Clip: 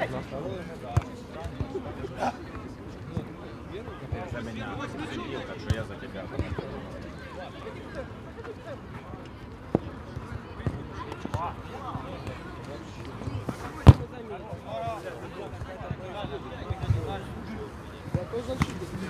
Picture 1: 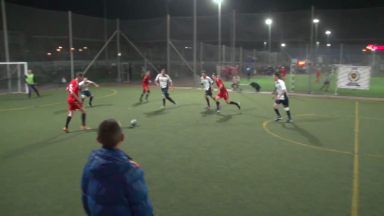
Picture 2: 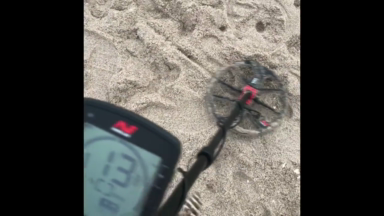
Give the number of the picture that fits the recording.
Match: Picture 1